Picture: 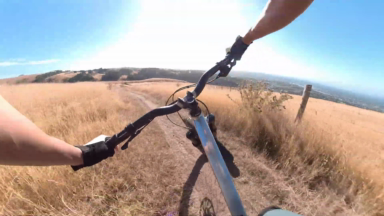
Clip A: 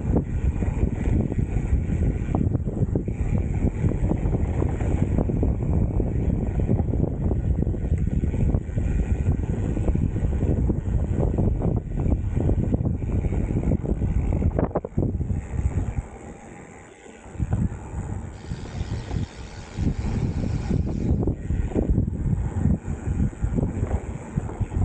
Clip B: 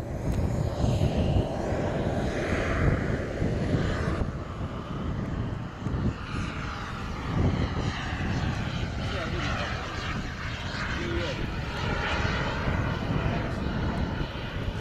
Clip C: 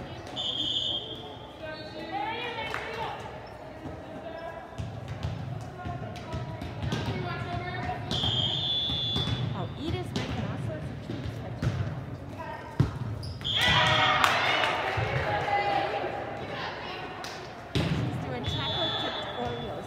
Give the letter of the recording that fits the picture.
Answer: A